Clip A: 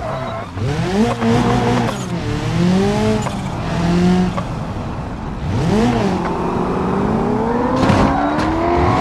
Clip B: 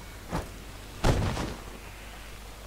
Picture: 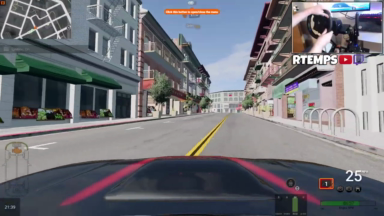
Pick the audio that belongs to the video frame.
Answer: A